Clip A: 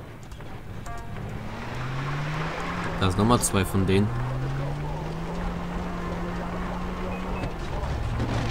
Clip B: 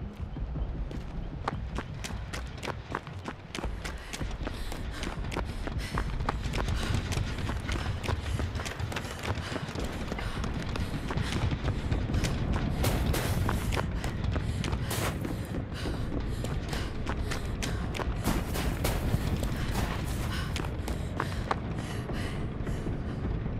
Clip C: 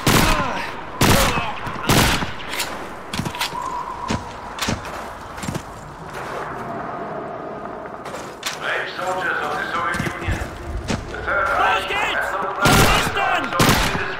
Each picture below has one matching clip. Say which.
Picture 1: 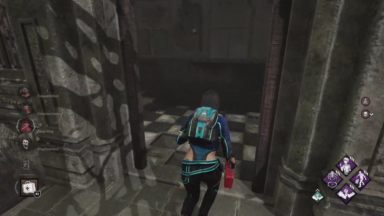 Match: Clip B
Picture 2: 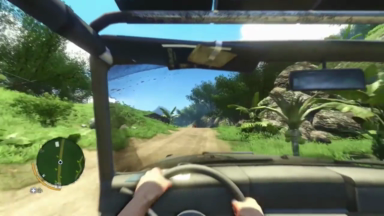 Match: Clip A